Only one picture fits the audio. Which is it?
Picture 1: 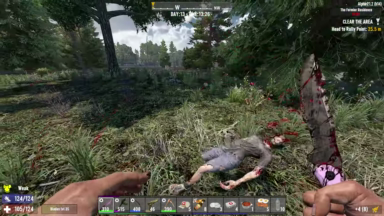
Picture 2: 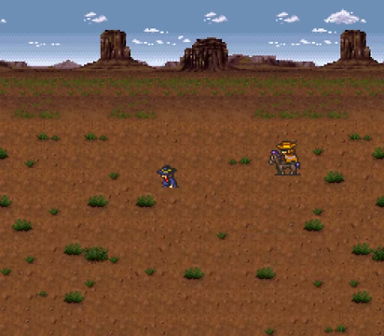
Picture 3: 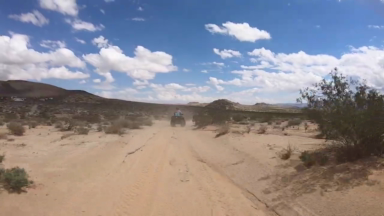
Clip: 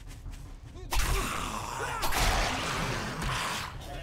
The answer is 1